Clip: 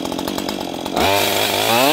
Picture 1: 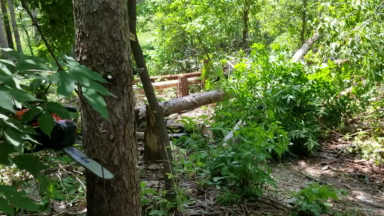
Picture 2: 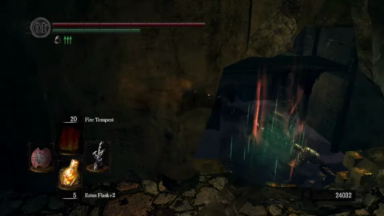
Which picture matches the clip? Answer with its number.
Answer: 1